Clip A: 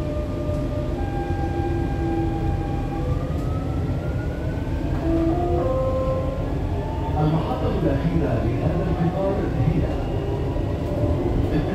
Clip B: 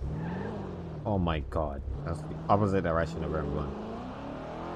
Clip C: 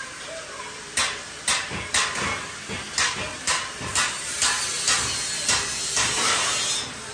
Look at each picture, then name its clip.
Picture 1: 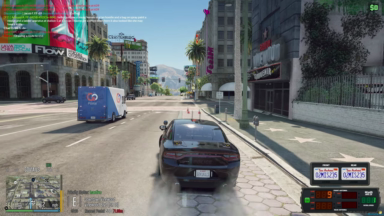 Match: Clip B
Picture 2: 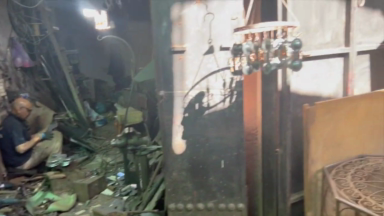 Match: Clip C